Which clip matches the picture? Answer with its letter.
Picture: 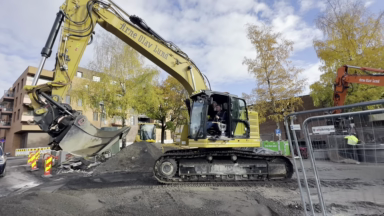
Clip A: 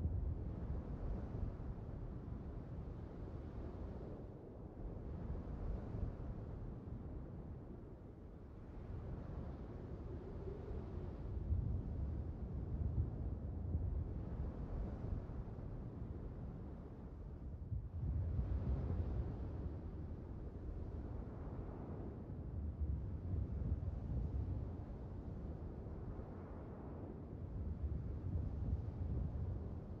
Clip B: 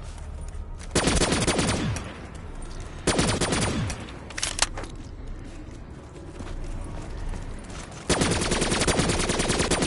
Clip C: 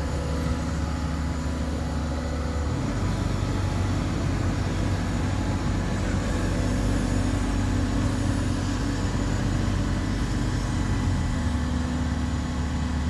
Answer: C